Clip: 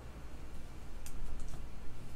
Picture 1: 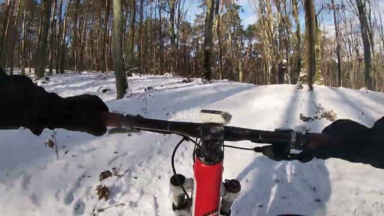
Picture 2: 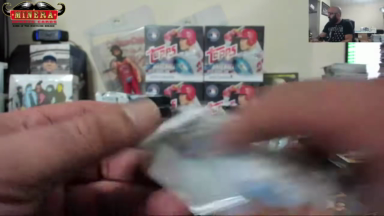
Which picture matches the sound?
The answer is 2